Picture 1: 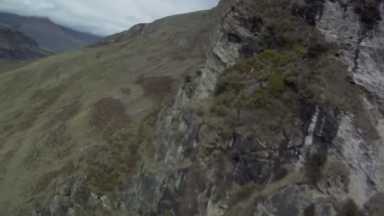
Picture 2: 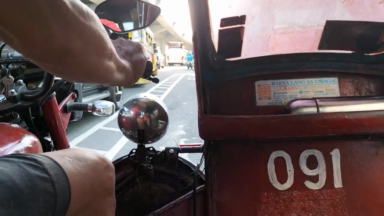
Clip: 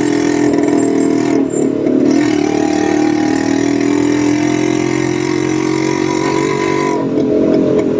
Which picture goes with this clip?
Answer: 2